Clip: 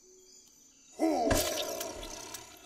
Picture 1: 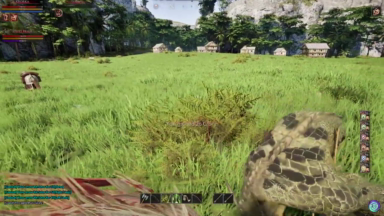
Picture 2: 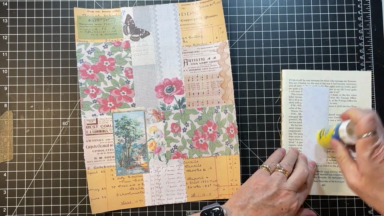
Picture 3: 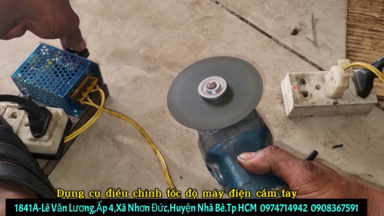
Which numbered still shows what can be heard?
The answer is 1